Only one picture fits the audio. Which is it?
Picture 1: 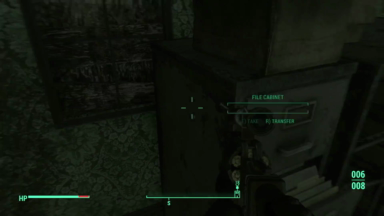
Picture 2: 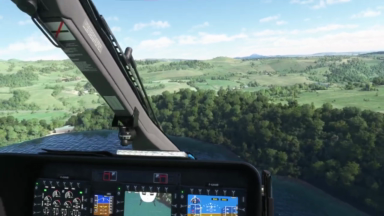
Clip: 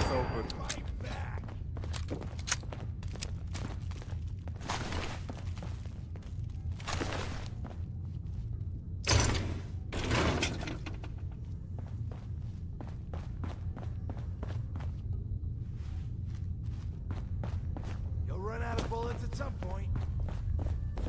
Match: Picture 1